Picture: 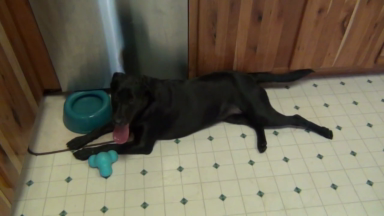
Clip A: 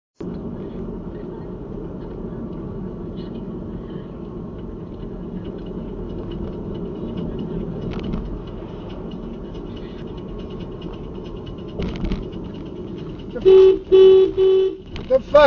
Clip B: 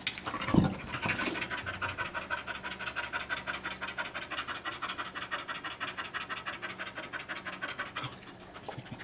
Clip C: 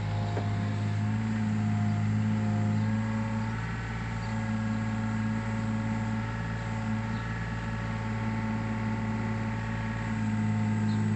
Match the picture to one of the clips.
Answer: B